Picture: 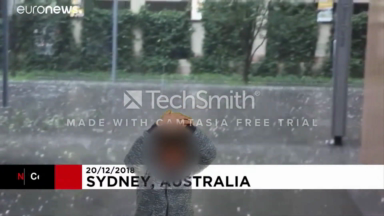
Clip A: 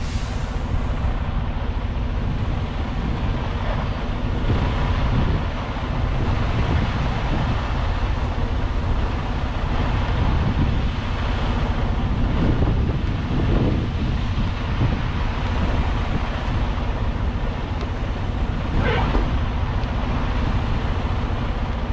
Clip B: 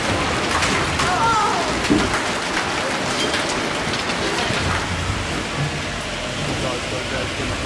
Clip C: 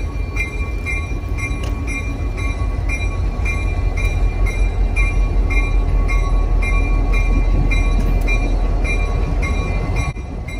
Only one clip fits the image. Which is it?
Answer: B